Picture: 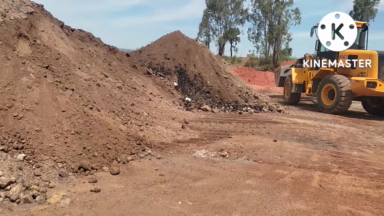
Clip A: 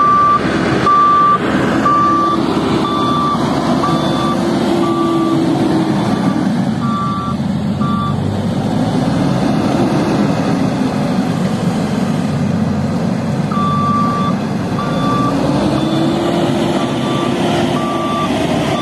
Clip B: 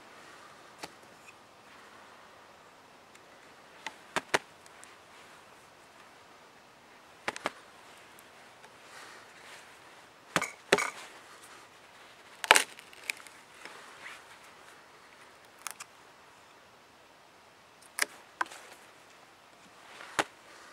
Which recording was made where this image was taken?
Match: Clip A